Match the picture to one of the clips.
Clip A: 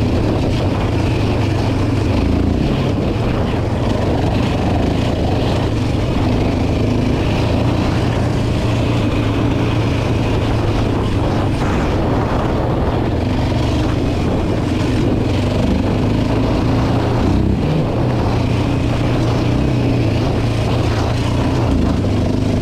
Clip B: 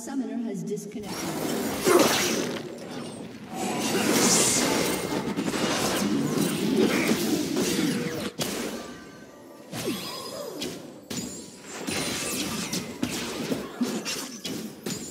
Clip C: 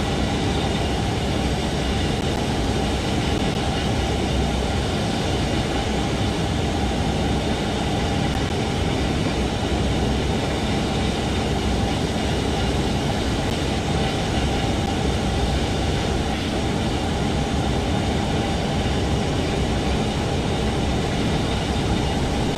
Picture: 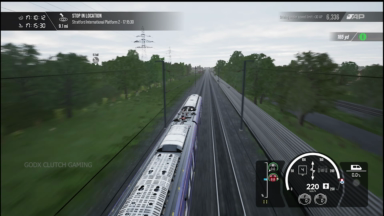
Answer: C